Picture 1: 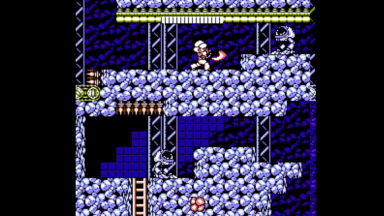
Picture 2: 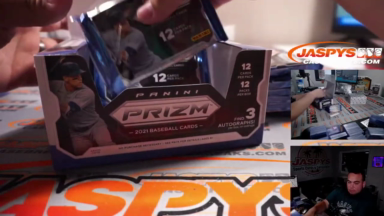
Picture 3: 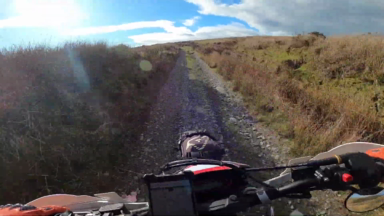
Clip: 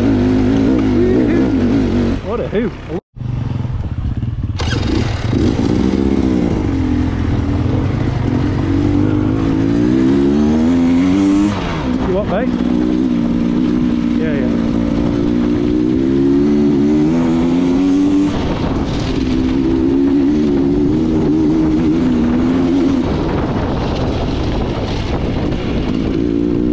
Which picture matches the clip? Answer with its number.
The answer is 3